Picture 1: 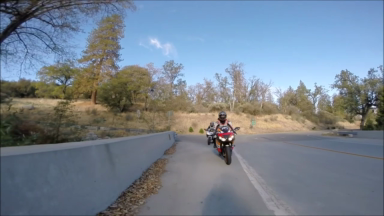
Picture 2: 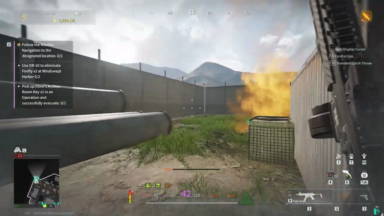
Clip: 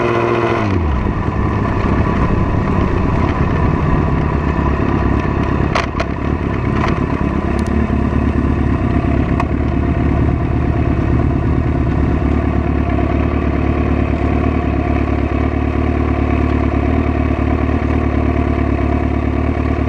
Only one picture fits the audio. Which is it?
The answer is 1